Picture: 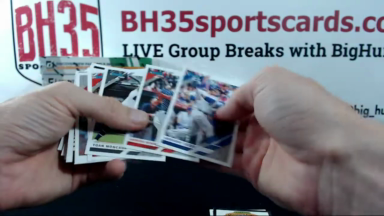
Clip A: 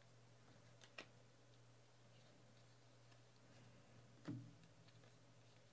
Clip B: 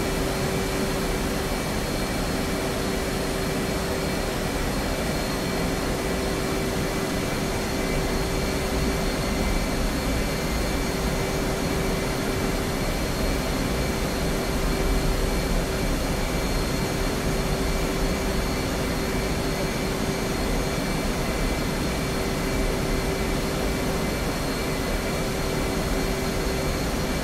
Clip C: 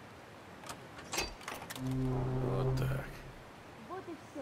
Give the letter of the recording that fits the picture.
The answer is A